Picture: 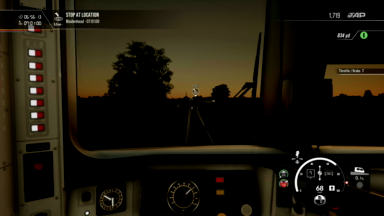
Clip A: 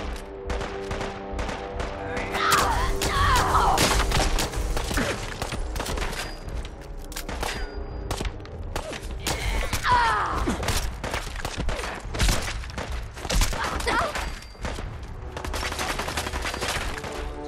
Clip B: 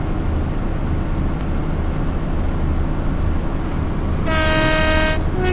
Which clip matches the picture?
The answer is B